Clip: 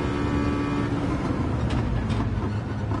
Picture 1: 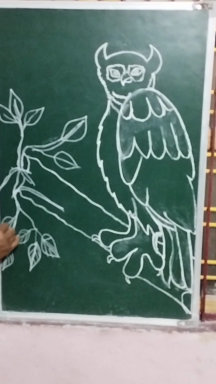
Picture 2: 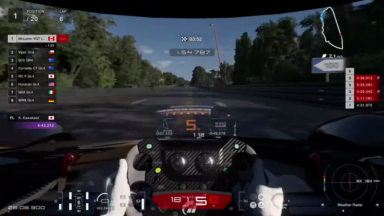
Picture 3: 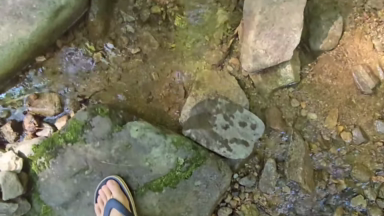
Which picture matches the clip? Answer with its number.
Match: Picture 2